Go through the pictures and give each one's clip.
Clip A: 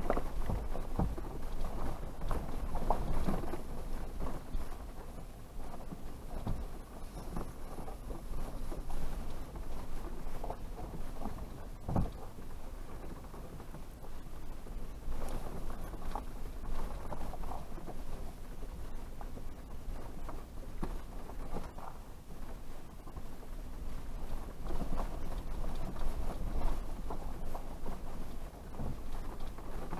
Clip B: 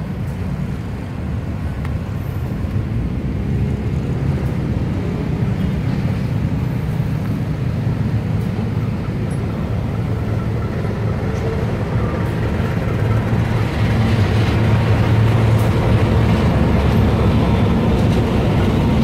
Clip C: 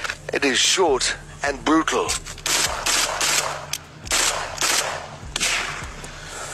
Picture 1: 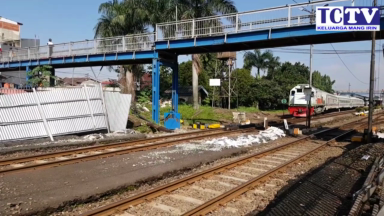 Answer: B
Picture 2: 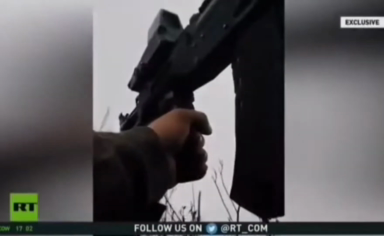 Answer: C